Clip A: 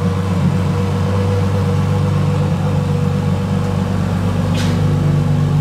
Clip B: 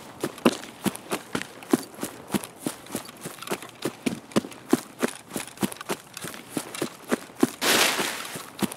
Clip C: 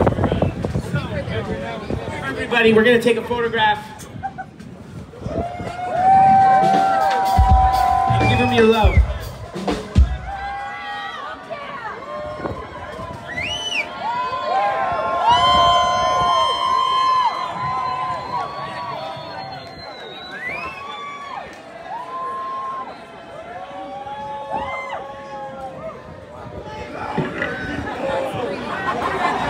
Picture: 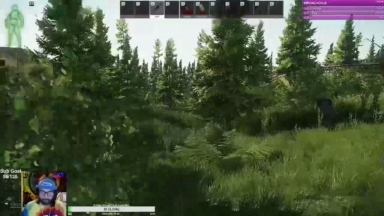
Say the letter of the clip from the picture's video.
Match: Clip B